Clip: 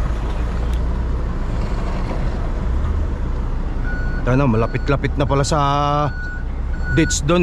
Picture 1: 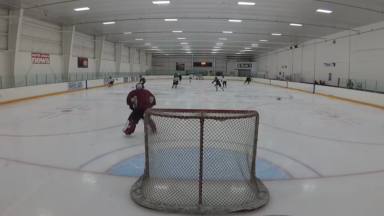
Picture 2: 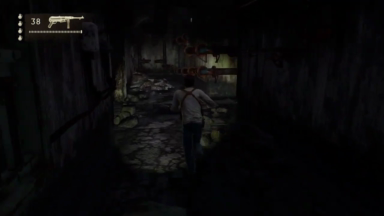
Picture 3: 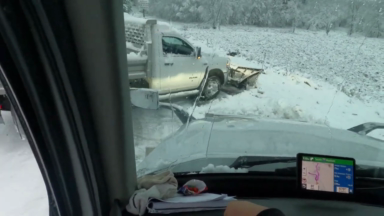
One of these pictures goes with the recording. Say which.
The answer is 3